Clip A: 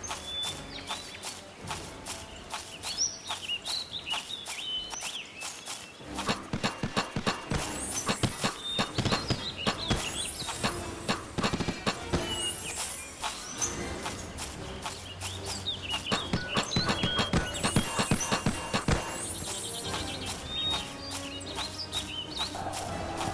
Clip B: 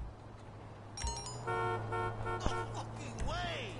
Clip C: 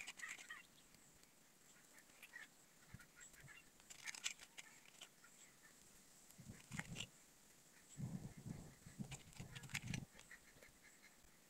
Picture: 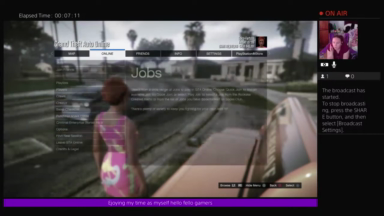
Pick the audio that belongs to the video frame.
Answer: B